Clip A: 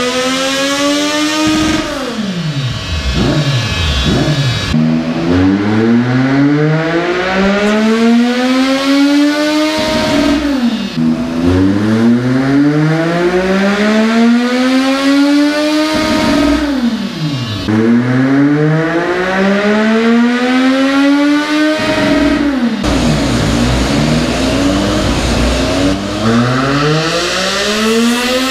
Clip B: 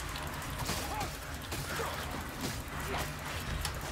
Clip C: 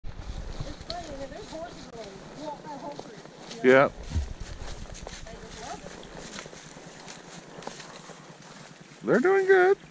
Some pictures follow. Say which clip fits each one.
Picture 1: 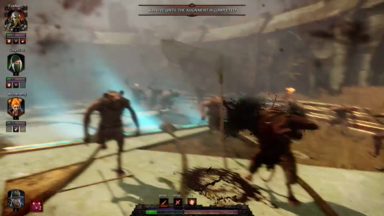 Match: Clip B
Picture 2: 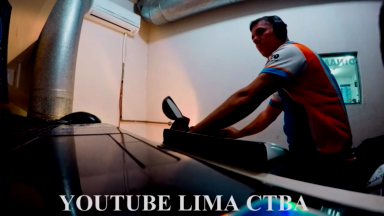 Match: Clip A